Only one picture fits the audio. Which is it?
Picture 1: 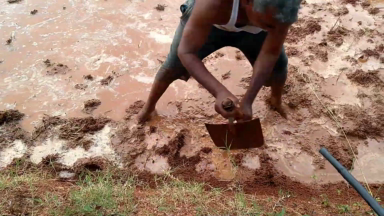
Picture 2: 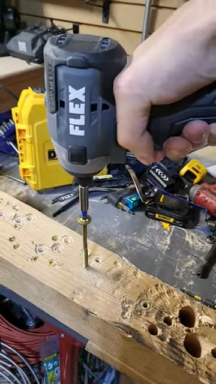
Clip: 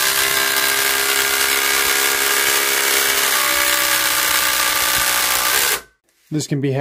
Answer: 2